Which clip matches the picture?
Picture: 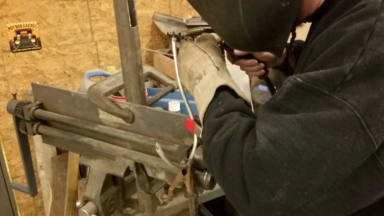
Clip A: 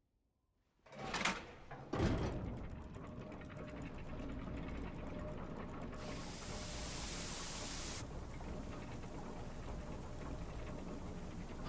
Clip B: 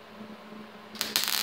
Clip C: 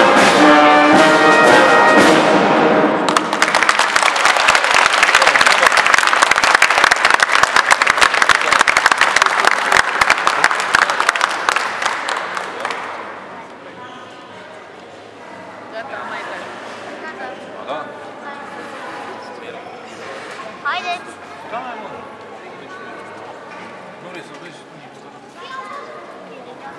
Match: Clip B